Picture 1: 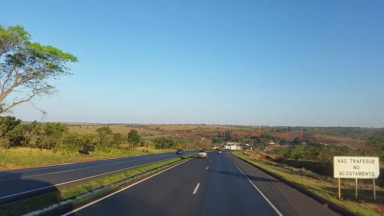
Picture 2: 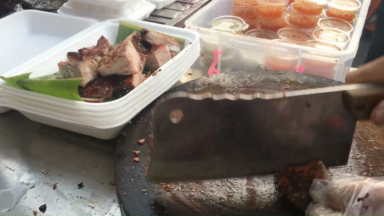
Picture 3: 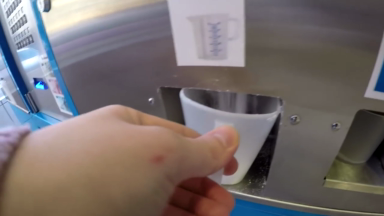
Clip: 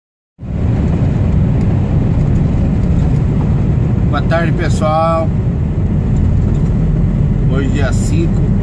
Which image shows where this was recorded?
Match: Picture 1